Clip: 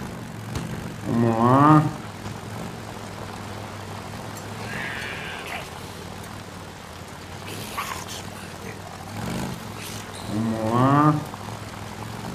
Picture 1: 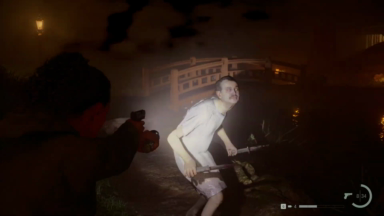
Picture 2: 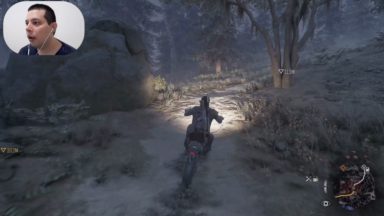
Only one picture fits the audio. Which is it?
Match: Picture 2